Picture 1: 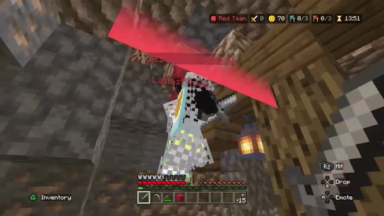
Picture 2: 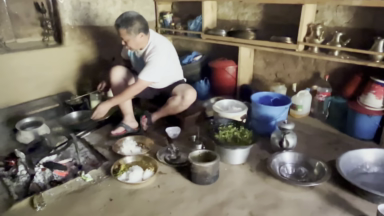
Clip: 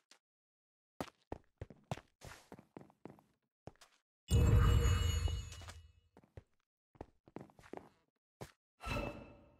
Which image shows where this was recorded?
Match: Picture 1